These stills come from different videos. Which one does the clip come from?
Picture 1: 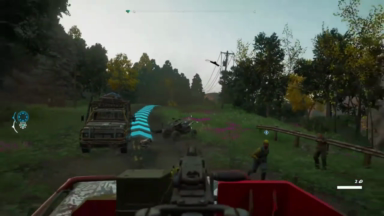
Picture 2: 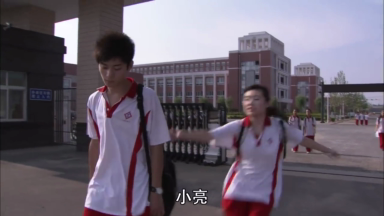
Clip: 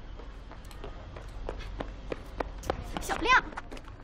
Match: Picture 2